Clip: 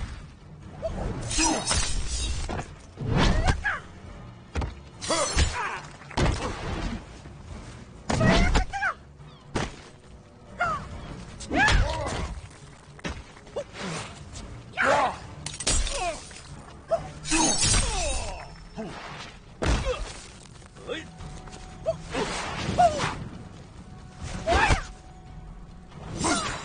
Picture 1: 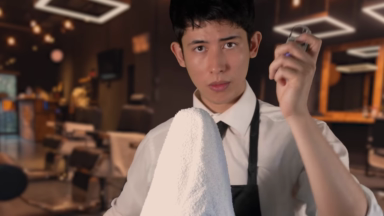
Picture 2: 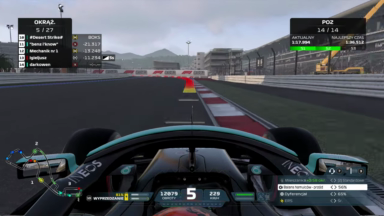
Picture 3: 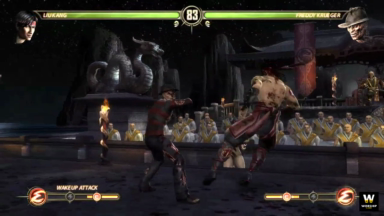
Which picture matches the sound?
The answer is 3